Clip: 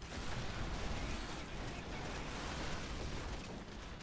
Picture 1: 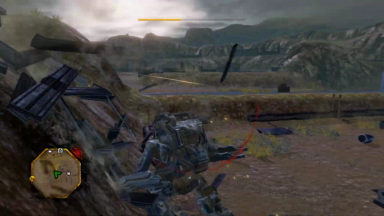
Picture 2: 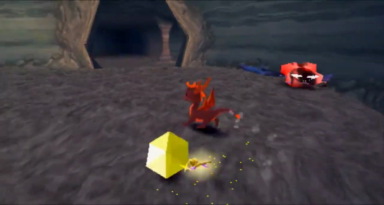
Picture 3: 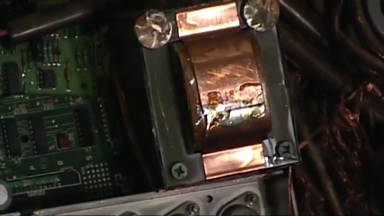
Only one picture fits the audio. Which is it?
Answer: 1